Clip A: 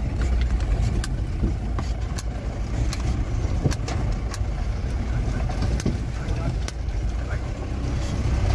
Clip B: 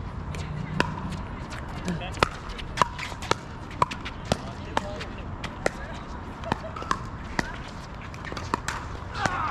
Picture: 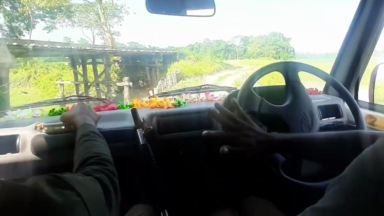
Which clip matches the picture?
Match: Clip A